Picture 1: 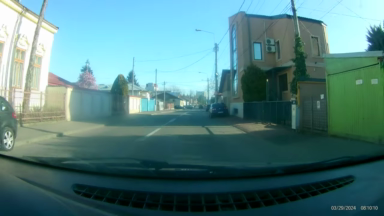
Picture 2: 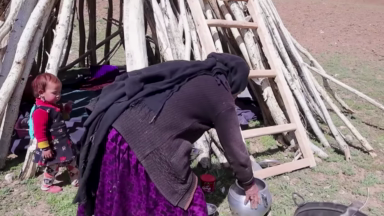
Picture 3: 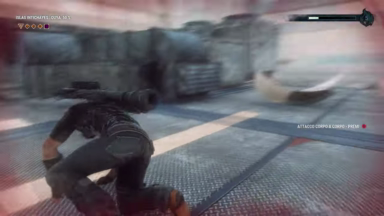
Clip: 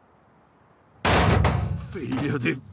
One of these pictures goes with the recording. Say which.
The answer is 3